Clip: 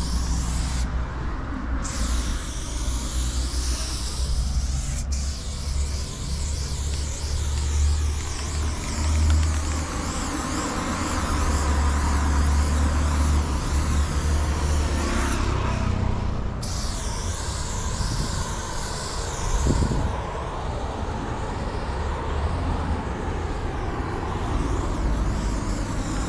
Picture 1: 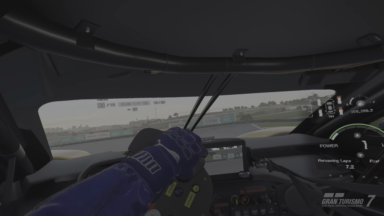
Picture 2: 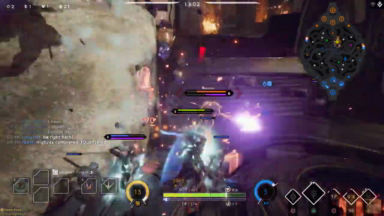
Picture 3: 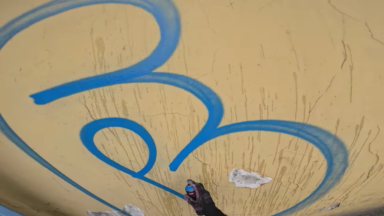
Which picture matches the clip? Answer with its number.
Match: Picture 3